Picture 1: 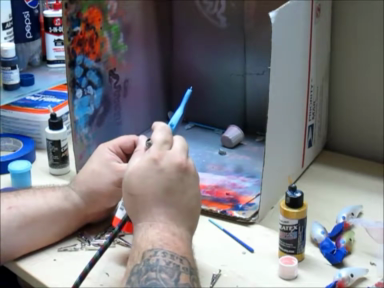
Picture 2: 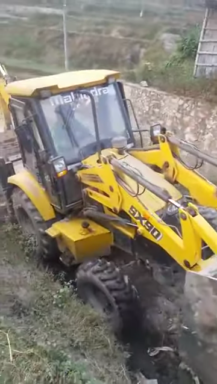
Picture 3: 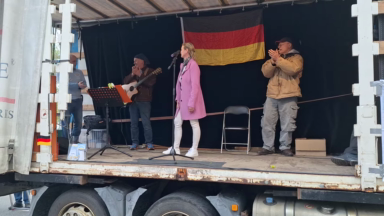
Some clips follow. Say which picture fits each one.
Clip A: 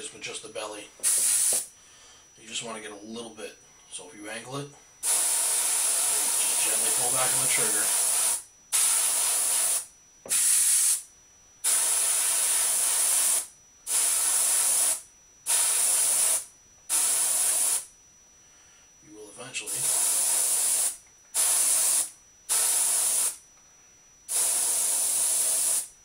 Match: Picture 1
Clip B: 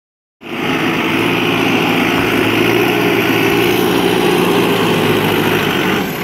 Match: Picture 2